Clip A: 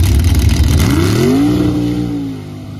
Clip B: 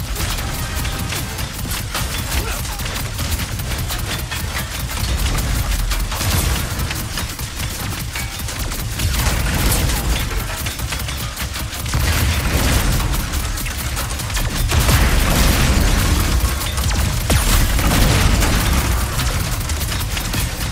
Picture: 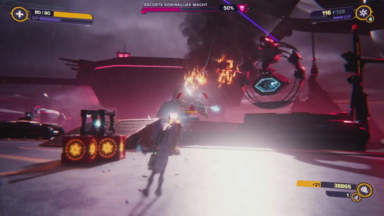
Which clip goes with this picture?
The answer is B